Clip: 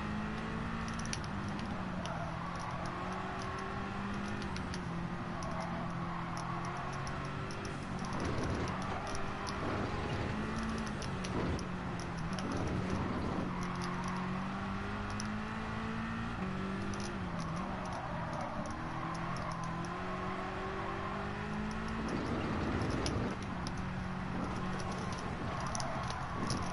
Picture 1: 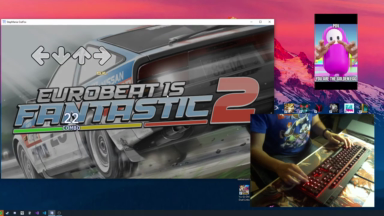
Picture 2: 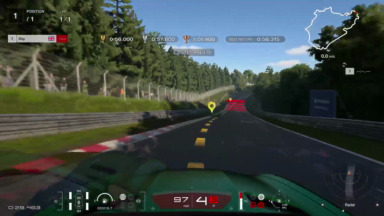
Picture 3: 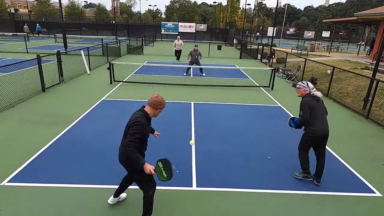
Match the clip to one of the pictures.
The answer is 2